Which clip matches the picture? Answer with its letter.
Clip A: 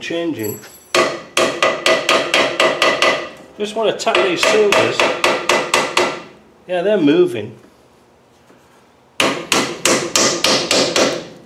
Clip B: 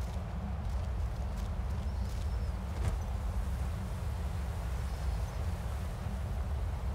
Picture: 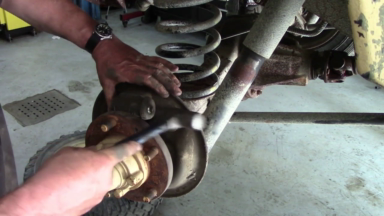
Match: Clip A